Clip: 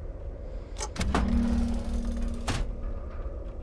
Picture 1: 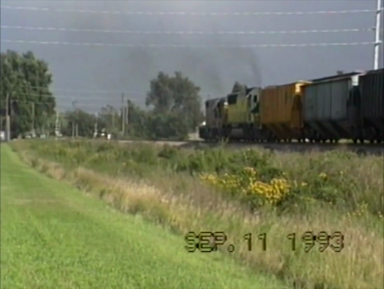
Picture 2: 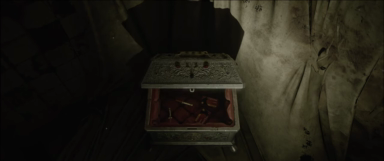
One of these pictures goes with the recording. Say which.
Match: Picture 2